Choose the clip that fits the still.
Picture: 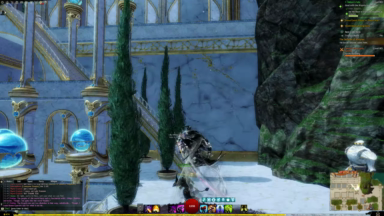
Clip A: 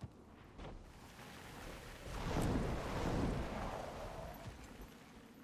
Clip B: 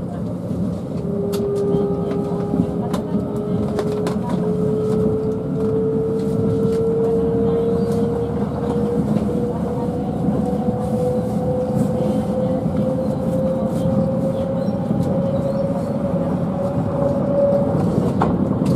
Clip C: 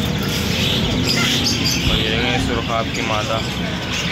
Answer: A